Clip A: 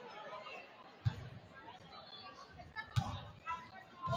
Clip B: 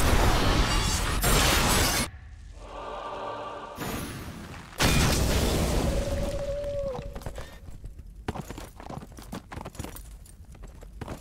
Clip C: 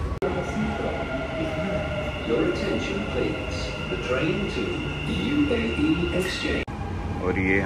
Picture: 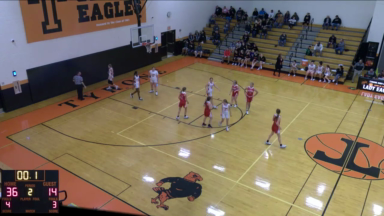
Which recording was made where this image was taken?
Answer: A